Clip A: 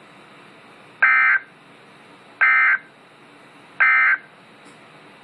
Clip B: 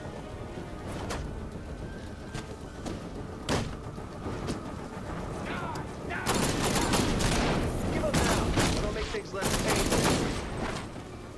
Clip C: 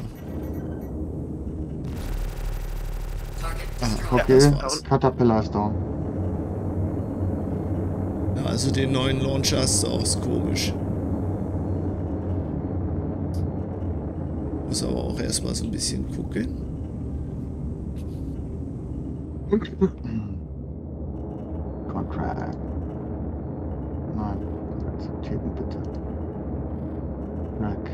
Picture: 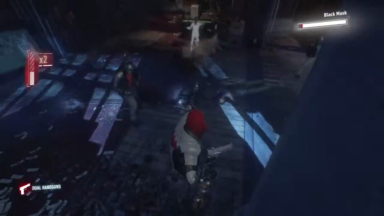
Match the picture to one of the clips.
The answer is B